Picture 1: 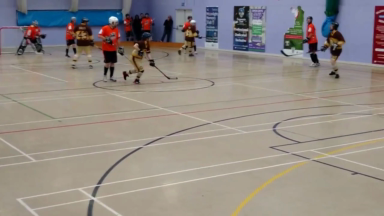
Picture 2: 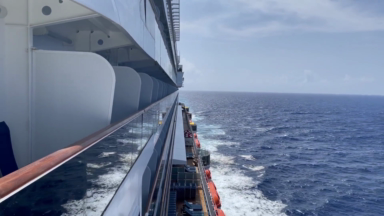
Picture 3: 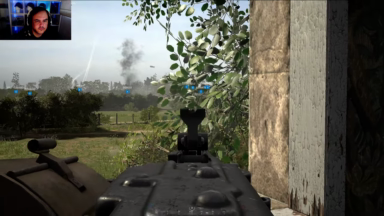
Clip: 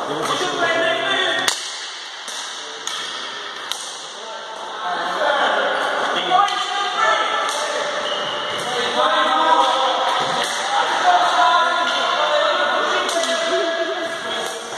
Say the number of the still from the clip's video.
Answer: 1